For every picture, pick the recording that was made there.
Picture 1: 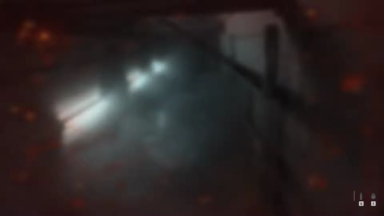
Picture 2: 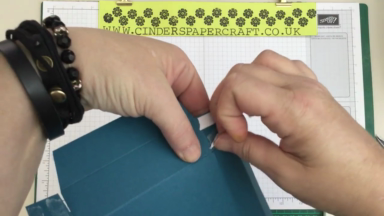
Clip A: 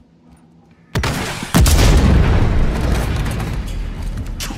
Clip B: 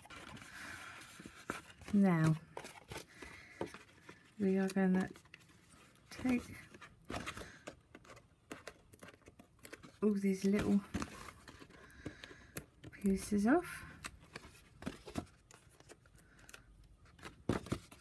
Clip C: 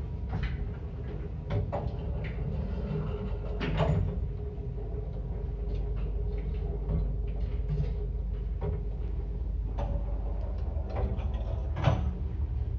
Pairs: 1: A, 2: B